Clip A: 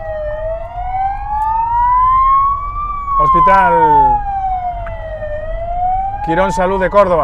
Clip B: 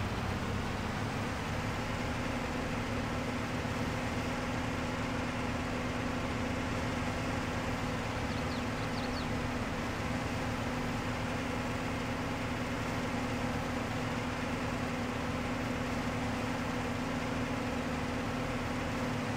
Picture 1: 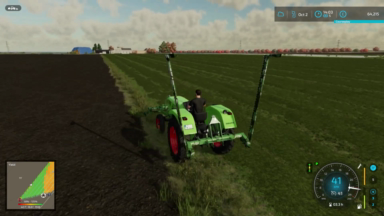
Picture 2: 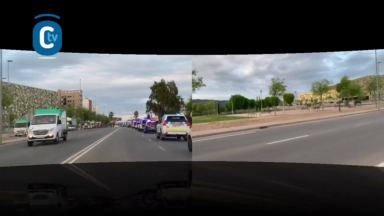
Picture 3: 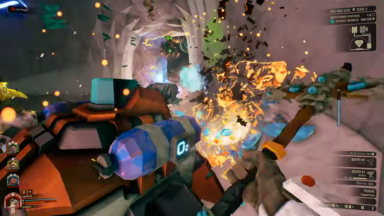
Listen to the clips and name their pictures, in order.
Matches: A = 2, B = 1